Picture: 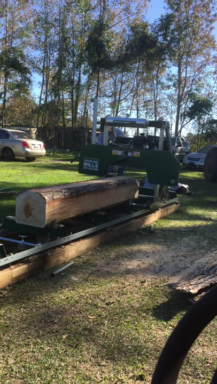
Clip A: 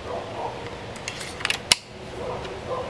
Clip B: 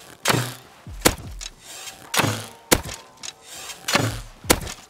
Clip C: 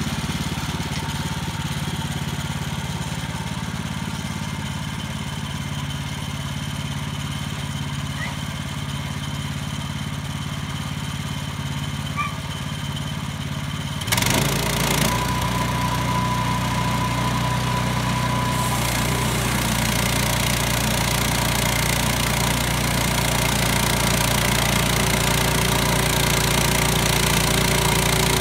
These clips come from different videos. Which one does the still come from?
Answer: C